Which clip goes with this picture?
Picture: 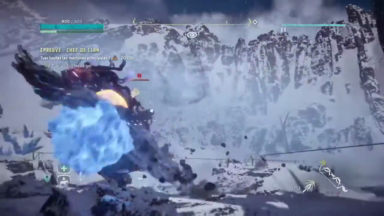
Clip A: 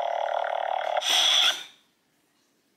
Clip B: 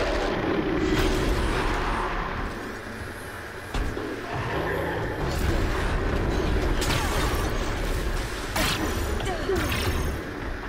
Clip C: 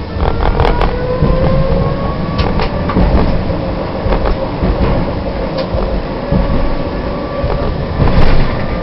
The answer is B